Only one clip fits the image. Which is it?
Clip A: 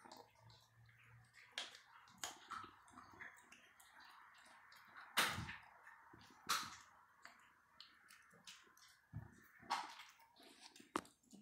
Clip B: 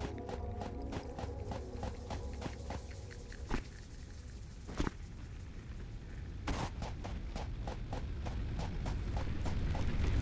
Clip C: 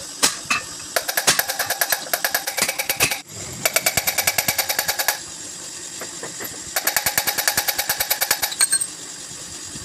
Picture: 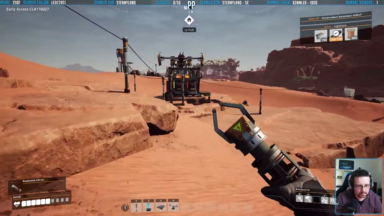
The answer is B